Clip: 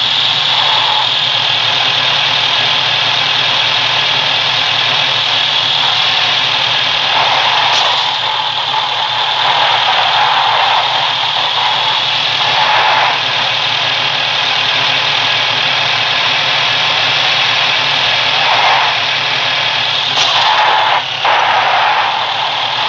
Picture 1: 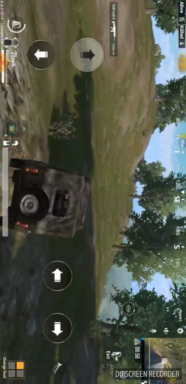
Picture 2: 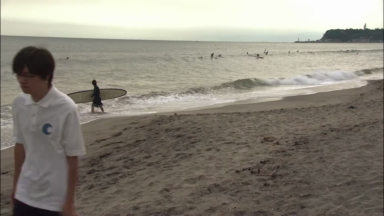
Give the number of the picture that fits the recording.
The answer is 1